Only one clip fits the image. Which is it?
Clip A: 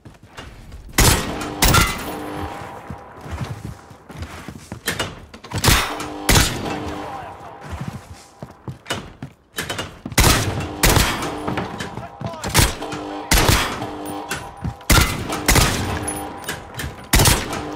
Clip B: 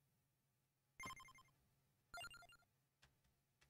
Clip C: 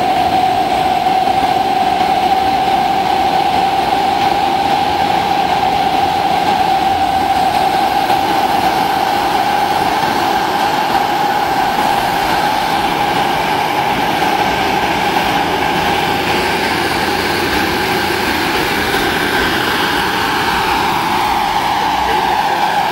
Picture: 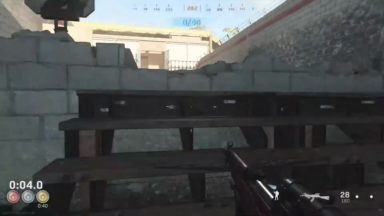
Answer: A